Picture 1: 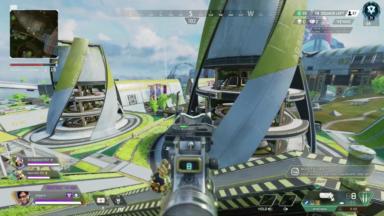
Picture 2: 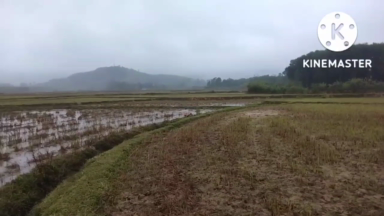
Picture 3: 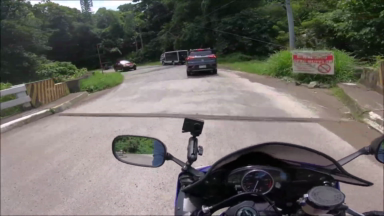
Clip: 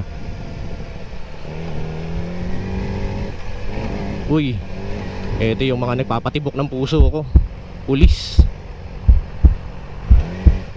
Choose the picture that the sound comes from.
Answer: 3